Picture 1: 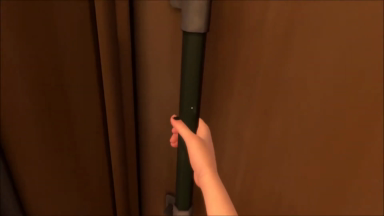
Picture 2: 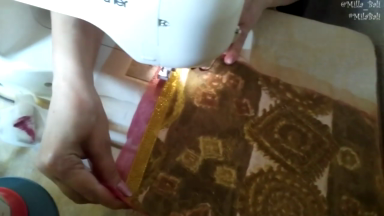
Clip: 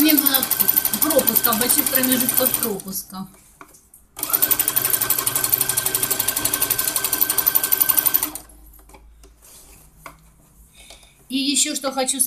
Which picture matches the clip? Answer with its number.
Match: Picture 2